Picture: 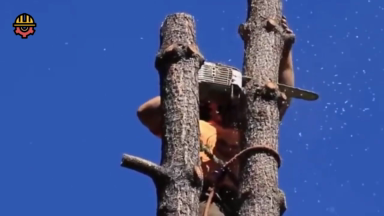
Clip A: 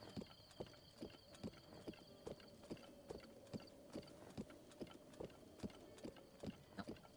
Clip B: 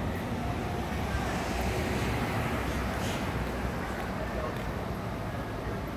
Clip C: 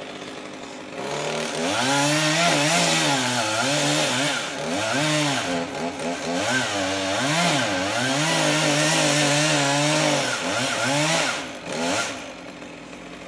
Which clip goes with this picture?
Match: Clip C